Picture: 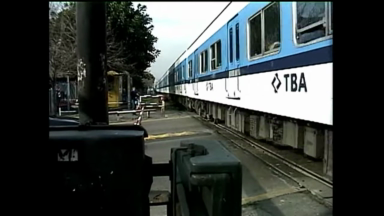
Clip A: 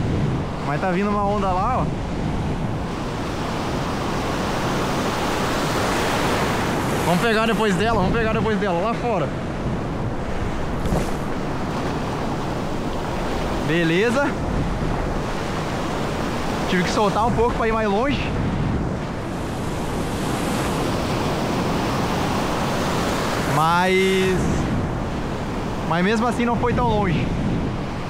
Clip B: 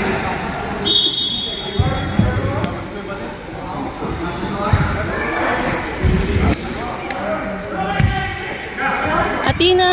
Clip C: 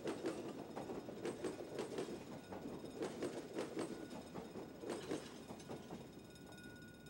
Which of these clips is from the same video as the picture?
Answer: C